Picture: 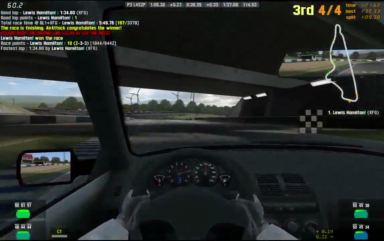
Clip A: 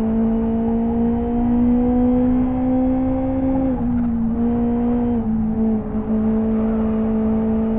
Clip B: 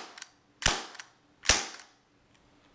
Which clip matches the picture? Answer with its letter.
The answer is A